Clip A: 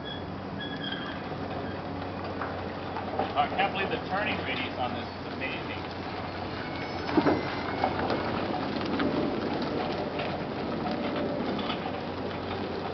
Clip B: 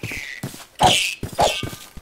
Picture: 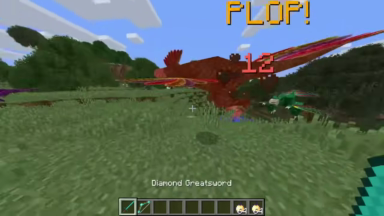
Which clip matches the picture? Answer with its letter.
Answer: B